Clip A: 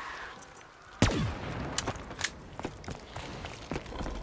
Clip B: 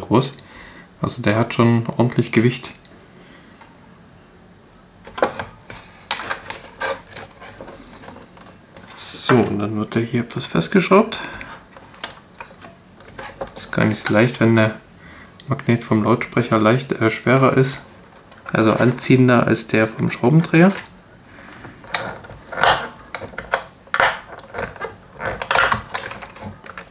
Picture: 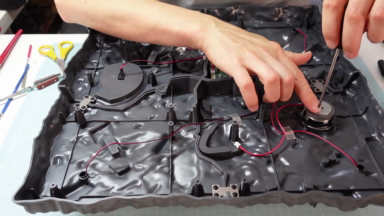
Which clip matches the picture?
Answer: B